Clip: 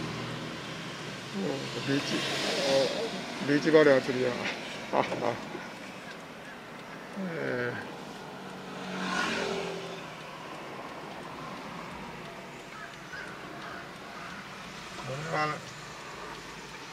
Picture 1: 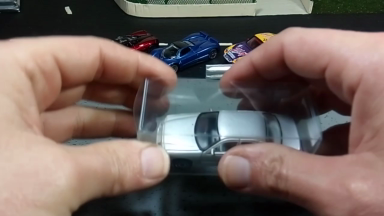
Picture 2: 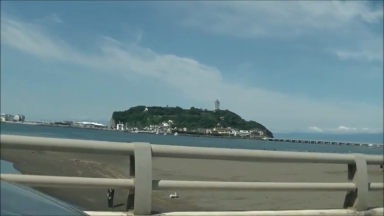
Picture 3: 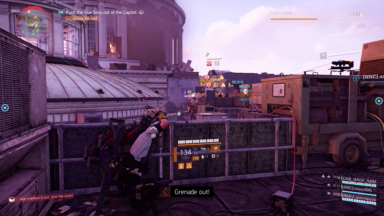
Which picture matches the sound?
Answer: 2